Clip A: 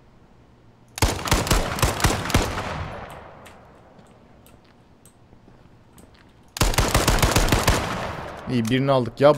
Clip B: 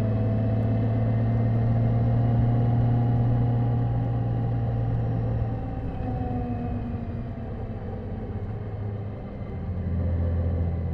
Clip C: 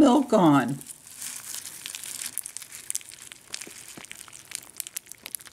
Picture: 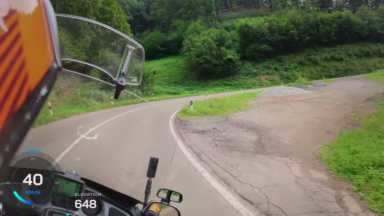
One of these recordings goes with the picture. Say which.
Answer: B